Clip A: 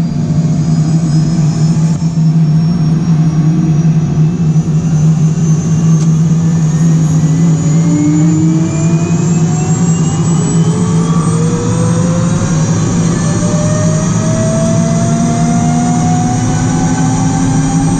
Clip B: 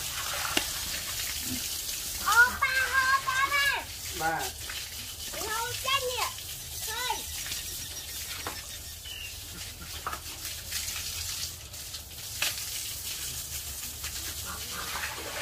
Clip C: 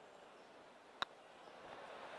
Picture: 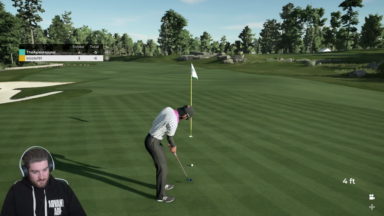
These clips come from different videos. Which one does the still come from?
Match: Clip C